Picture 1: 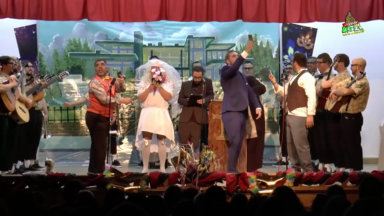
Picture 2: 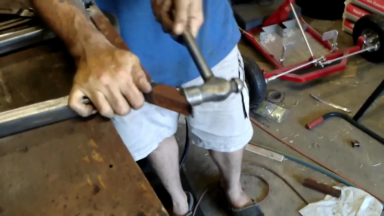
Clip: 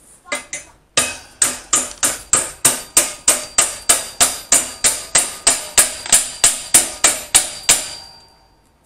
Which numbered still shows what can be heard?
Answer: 2